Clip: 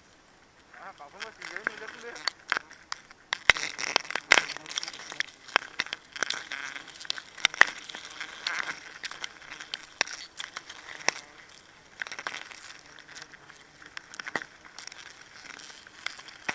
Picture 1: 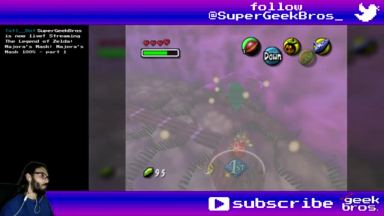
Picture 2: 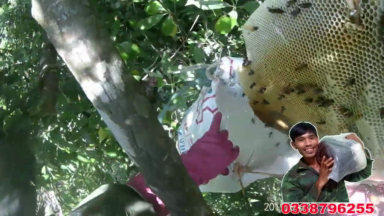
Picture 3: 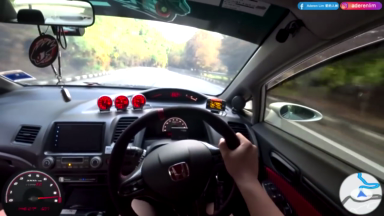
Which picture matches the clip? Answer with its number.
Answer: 2